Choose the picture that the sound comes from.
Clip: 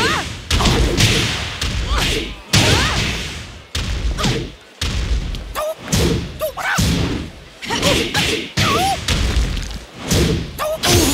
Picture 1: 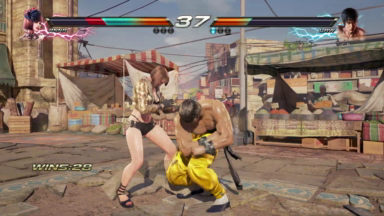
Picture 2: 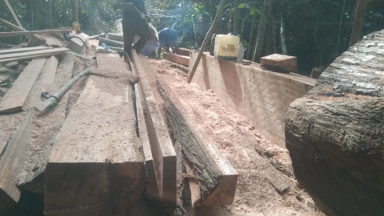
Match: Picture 1